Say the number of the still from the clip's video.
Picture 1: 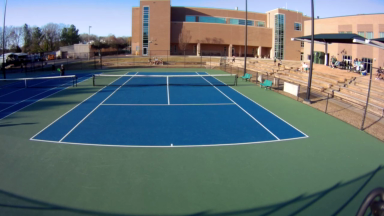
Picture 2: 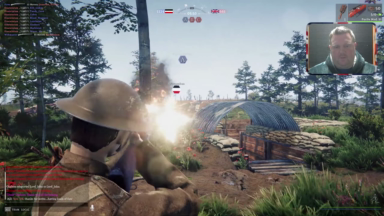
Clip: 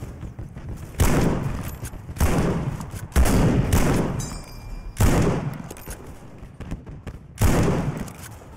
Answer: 2